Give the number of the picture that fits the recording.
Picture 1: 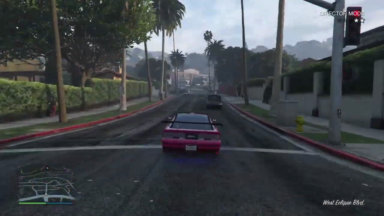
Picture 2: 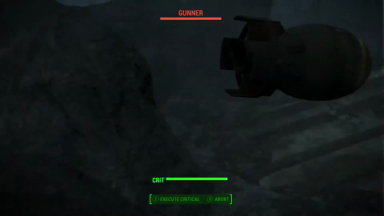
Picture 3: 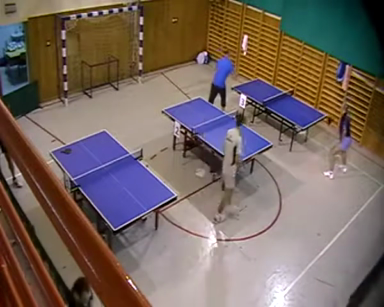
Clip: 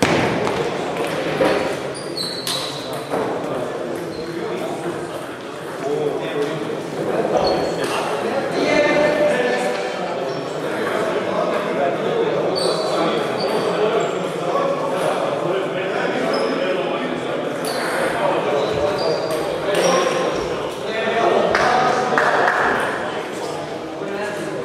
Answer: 3